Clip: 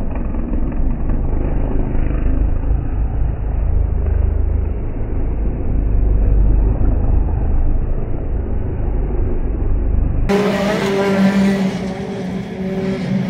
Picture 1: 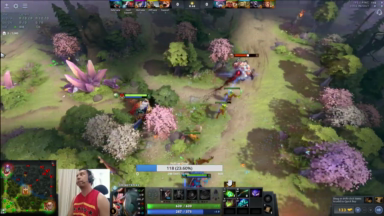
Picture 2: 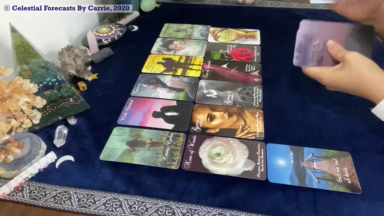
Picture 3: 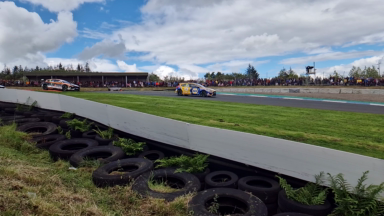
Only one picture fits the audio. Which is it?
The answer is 3